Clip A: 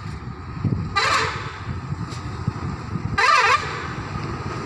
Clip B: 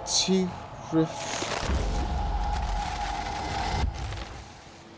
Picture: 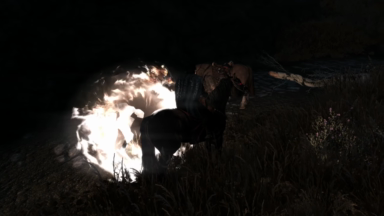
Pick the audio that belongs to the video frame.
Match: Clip B